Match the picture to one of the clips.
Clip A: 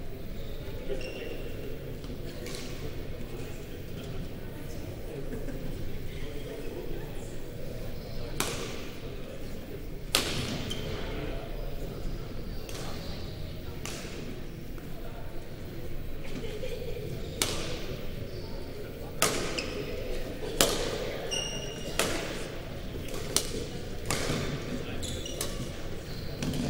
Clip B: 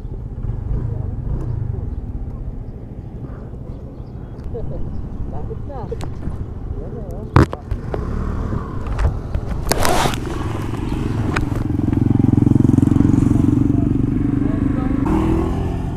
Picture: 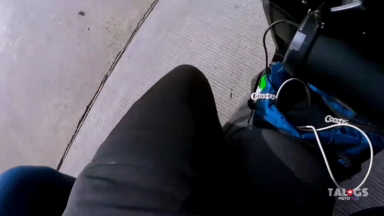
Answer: B